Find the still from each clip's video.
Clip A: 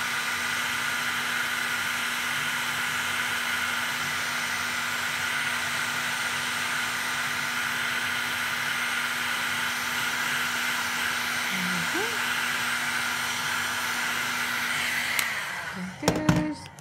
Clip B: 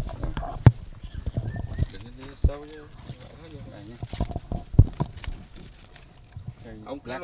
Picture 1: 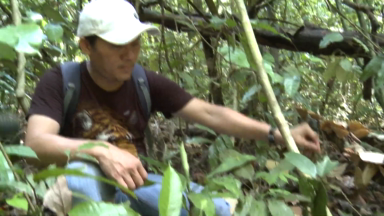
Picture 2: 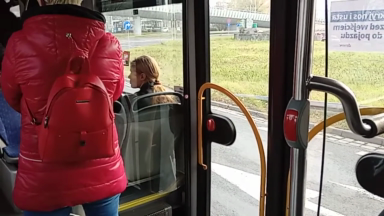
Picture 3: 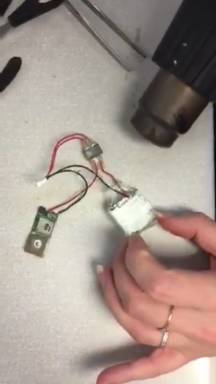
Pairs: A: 3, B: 1